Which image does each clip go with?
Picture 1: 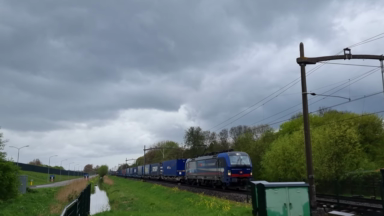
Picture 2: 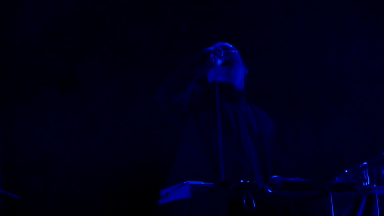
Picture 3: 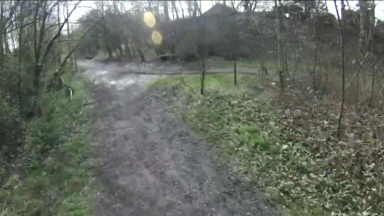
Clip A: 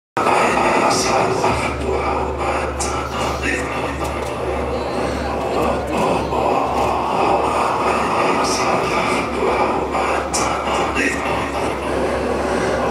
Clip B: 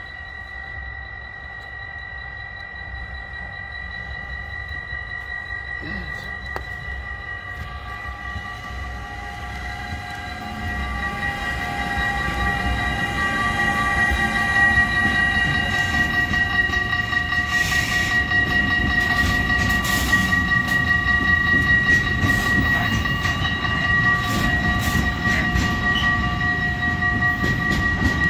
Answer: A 2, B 1